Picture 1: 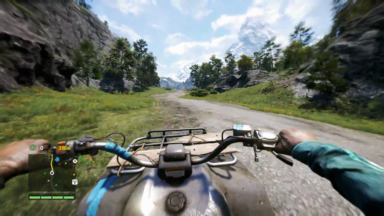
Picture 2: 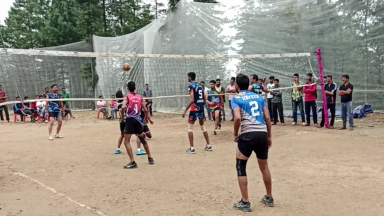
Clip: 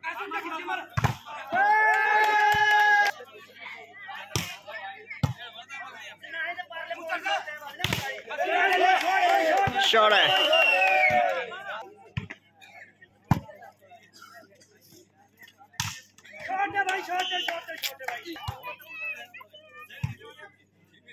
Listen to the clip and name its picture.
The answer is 2